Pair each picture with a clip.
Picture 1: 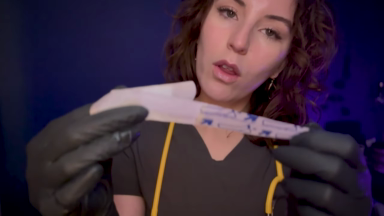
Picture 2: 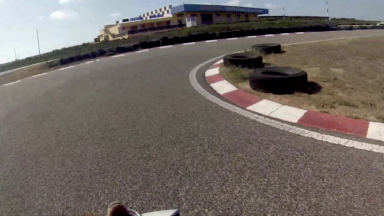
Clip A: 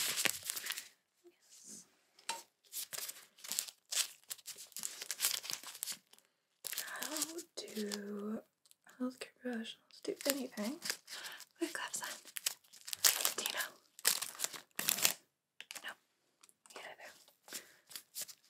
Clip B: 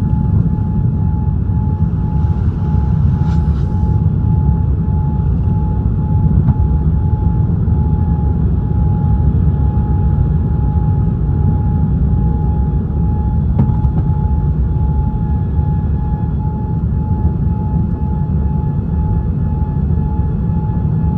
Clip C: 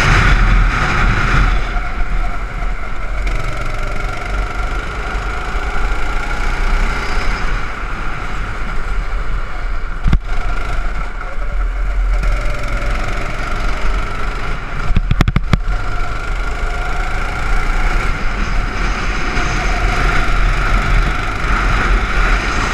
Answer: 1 A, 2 C